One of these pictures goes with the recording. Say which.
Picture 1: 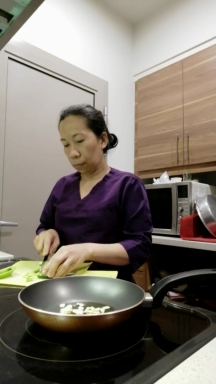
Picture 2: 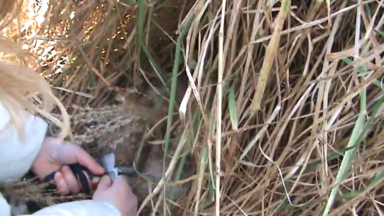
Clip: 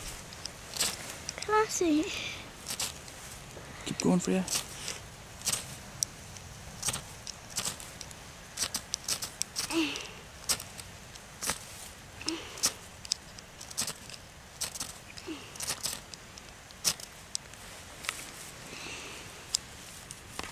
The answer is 2